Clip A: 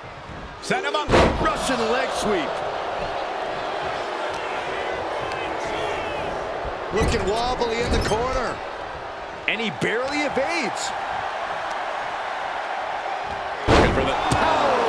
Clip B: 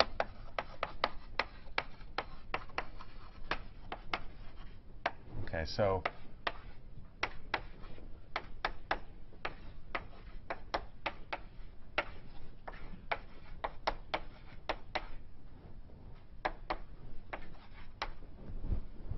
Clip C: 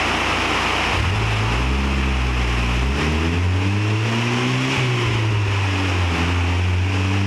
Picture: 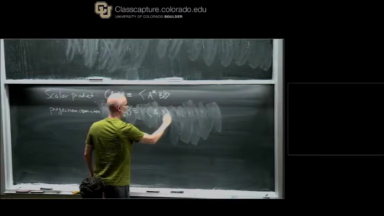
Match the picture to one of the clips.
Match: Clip B